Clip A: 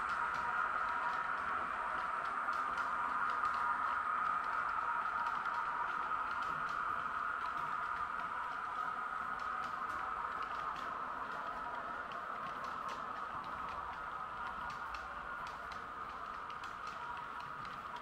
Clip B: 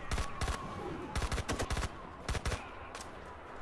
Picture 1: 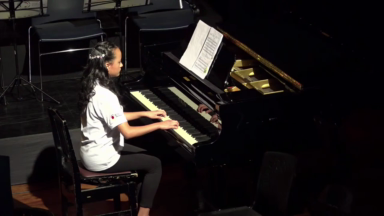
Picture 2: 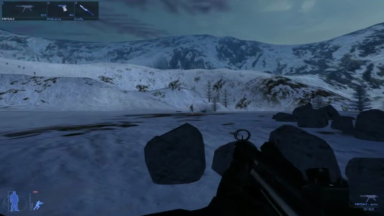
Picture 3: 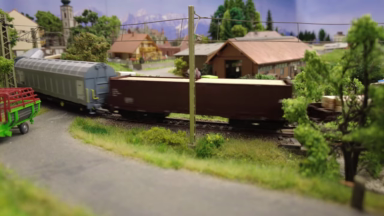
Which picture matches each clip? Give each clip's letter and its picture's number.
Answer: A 3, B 2